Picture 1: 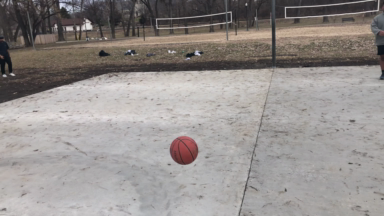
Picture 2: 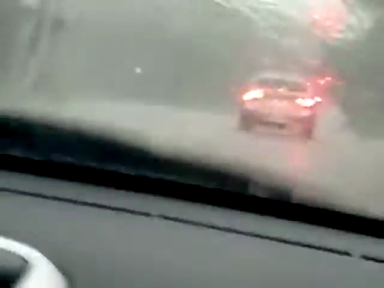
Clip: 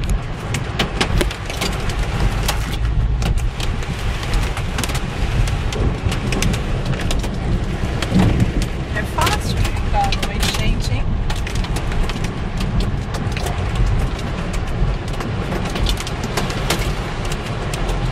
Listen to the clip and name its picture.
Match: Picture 2